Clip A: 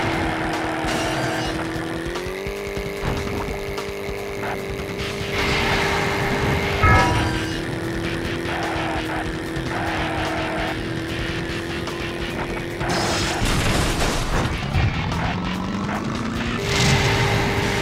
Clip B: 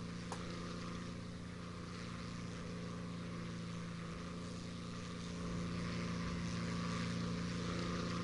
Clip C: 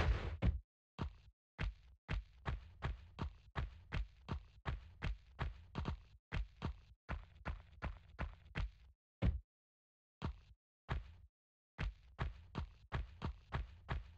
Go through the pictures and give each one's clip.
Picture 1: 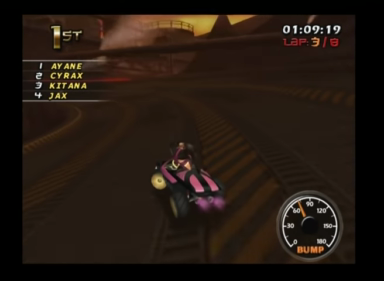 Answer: A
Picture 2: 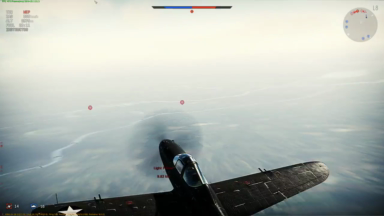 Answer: B